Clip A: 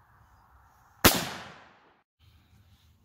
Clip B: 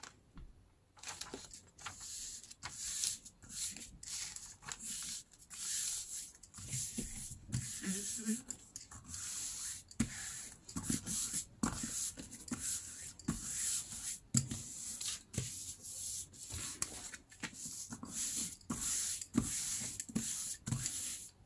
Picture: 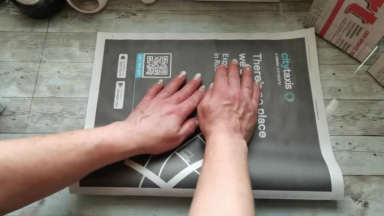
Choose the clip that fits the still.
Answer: B